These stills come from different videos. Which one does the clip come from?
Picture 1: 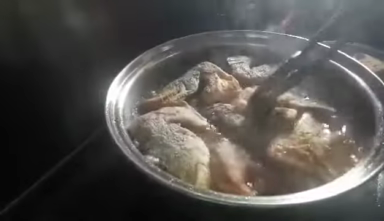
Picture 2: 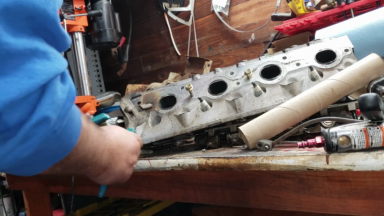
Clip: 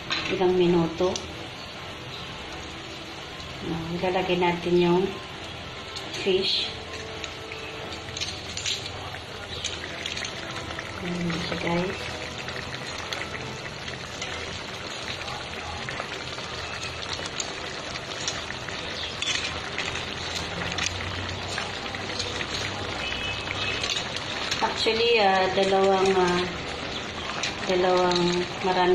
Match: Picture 1